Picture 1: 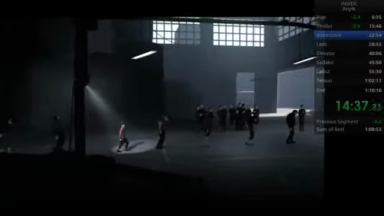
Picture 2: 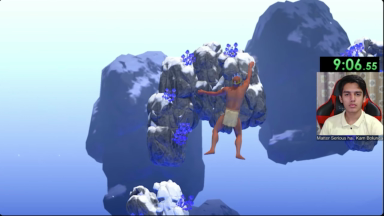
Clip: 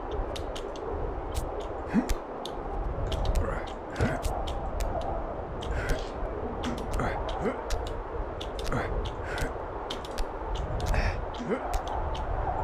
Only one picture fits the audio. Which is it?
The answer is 2